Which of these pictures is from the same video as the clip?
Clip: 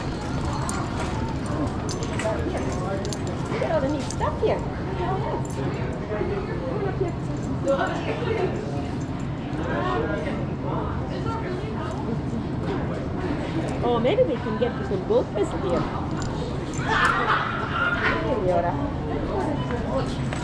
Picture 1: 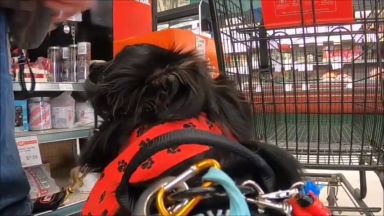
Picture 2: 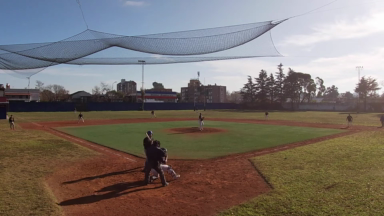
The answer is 1